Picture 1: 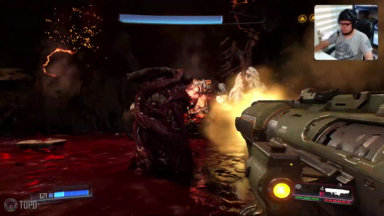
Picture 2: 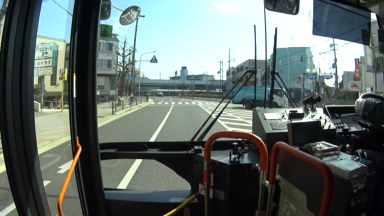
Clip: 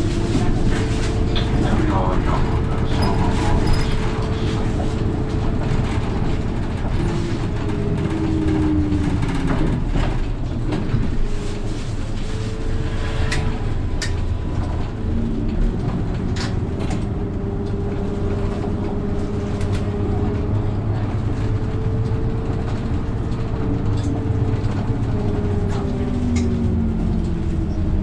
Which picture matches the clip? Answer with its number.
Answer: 2